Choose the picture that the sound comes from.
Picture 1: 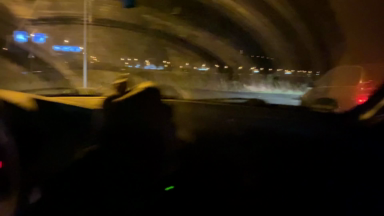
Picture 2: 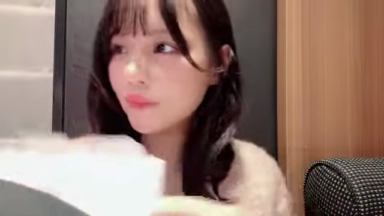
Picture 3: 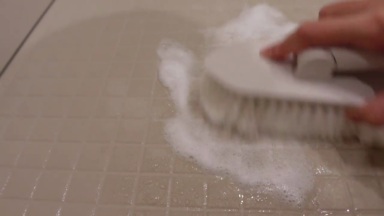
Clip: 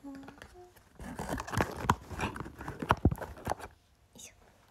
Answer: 2